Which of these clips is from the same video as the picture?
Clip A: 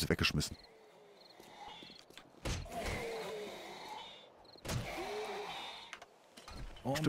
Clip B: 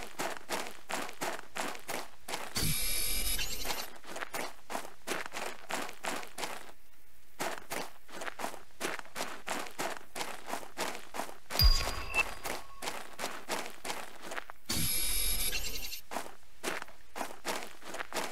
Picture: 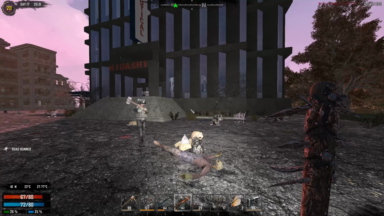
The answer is A